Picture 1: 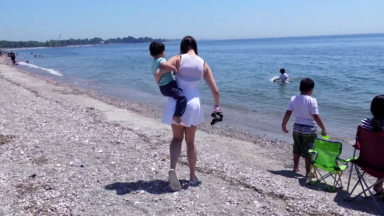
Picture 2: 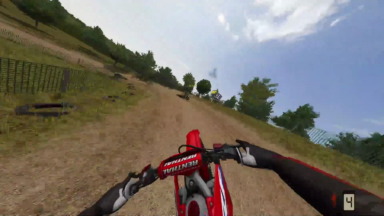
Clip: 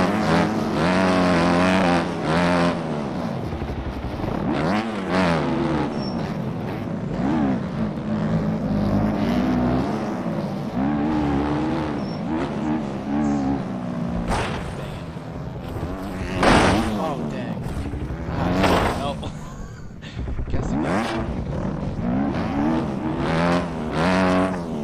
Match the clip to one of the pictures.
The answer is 2